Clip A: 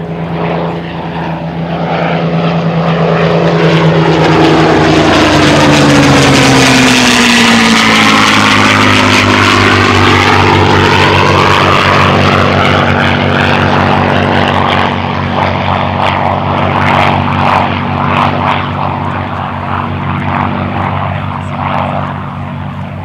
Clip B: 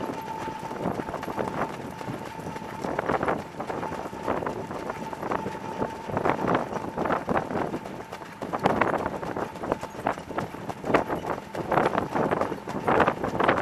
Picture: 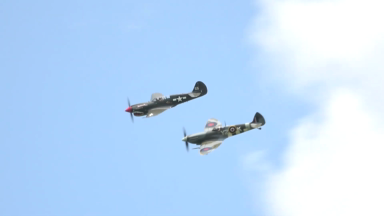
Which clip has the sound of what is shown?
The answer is A